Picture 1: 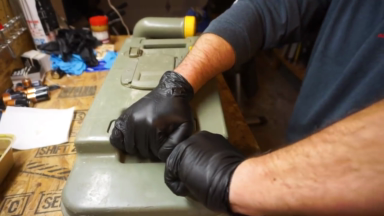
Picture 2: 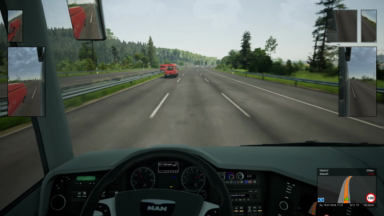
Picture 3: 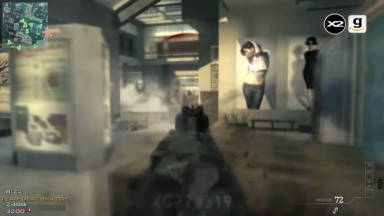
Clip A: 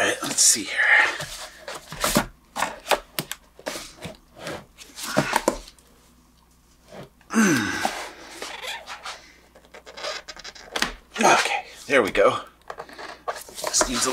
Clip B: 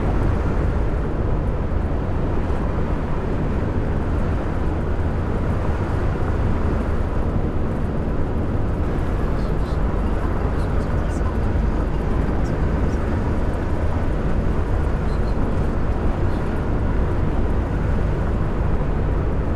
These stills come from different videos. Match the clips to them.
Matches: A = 1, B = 2